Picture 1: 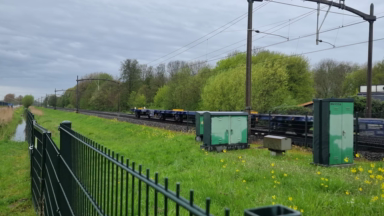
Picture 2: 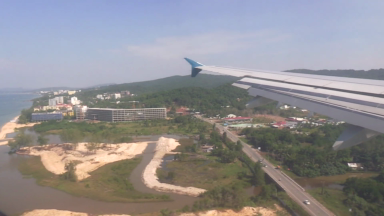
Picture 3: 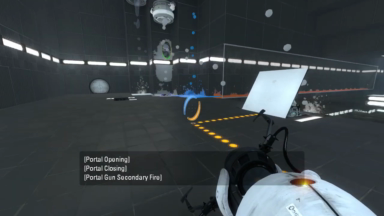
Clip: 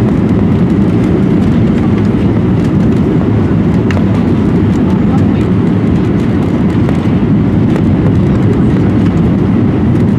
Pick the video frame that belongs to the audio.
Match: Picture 2